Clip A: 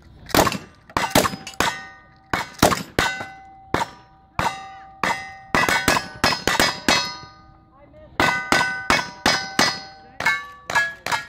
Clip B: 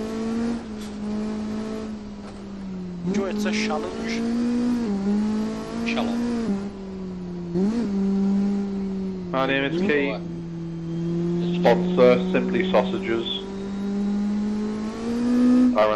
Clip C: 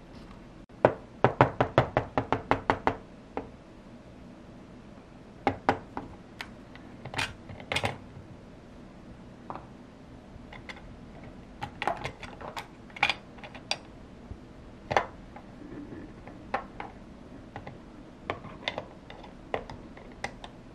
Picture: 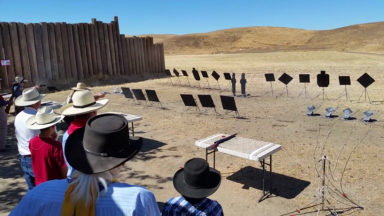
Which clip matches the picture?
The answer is A